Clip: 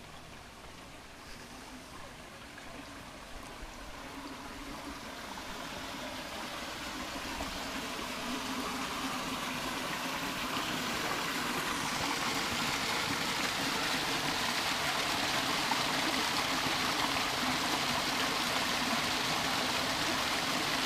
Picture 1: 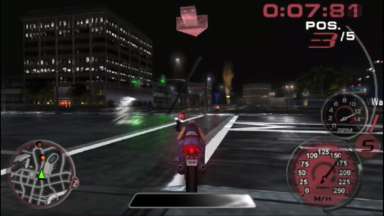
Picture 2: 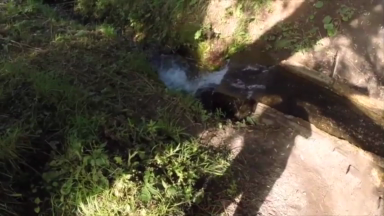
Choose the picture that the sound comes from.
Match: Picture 2